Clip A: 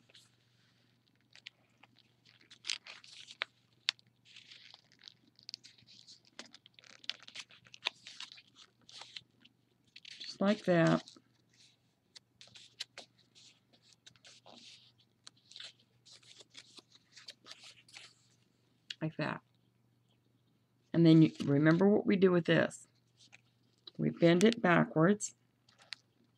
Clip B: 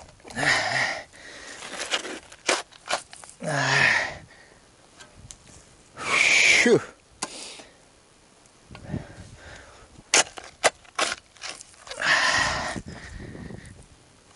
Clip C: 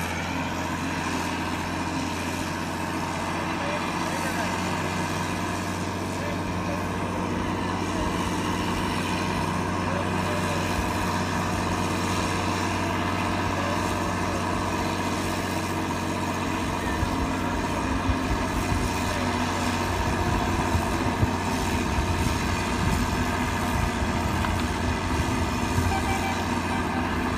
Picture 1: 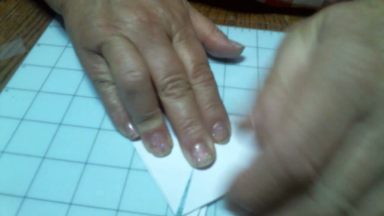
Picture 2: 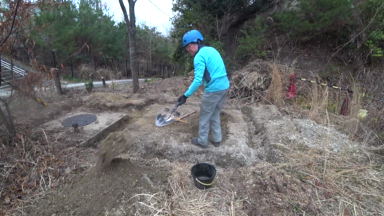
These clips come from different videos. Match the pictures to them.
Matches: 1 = A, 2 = B